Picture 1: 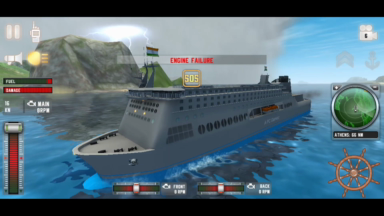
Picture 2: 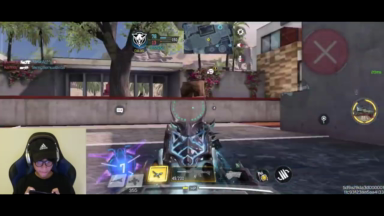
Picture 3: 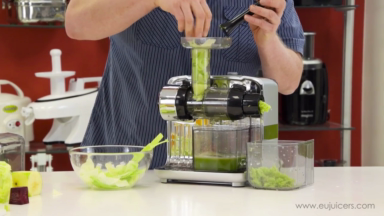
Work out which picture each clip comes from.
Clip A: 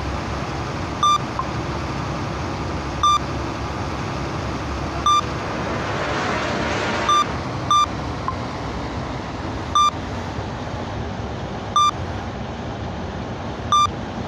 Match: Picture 1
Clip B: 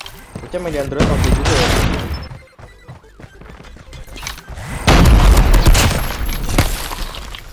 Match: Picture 2